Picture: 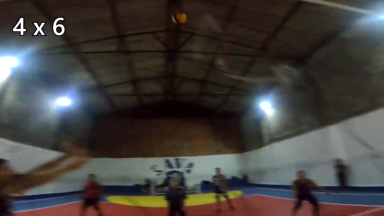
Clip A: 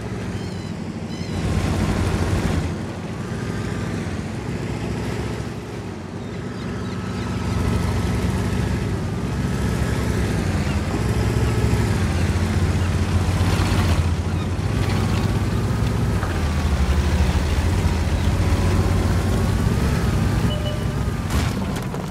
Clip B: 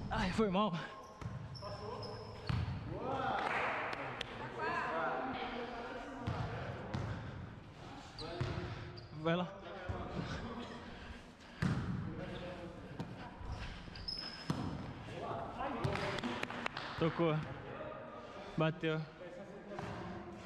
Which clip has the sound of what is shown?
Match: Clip B